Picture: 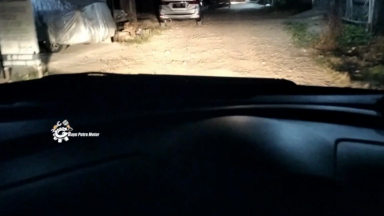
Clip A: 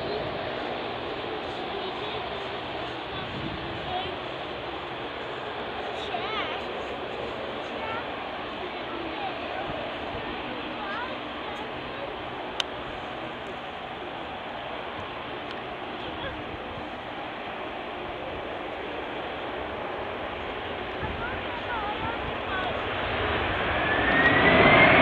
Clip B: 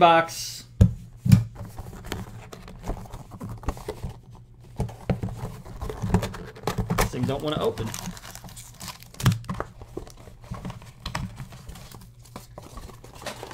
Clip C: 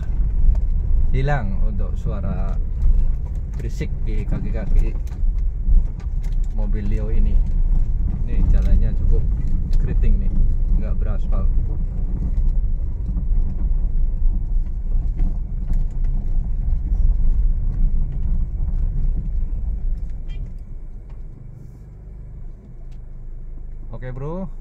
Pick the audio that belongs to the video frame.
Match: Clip C